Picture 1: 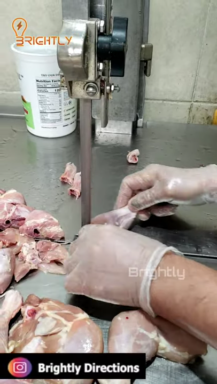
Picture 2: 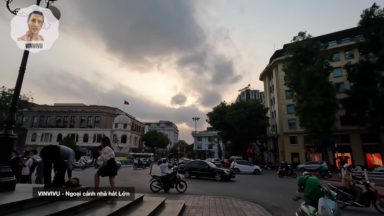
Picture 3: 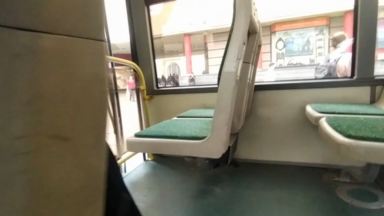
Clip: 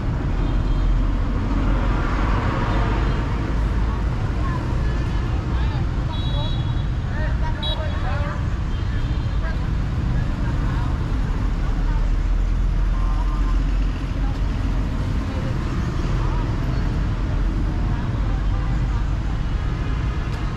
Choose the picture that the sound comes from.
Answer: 2